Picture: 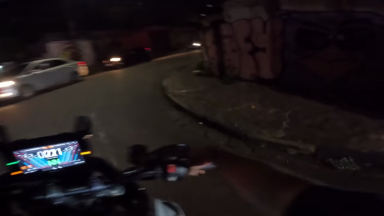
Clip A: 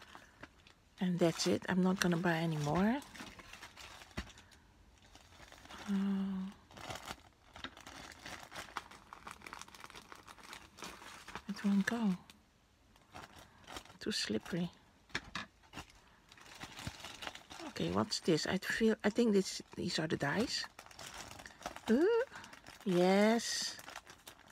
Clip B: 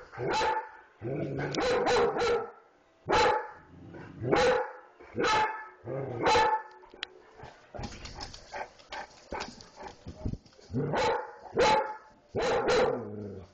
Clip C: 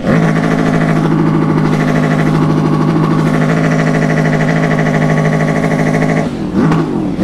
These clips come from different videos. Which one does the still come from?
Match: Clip C